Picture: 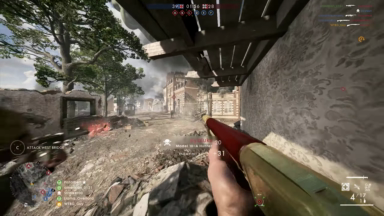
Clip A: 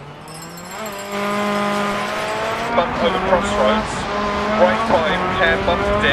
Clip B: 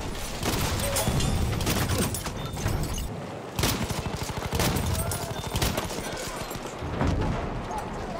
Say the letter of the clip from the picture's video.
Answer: B